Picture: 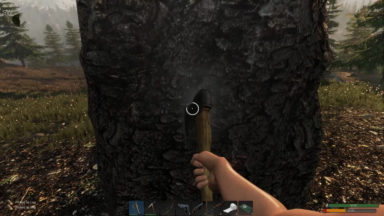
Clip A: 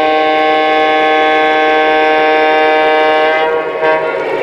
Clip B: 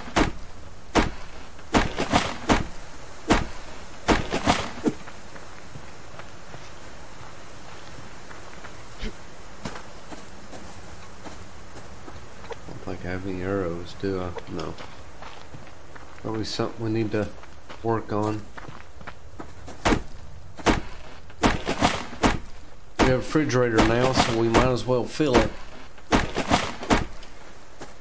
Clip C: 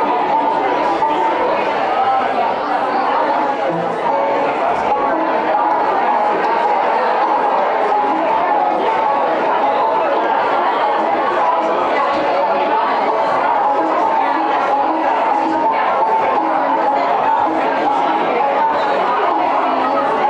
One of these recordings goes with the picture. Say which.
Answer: B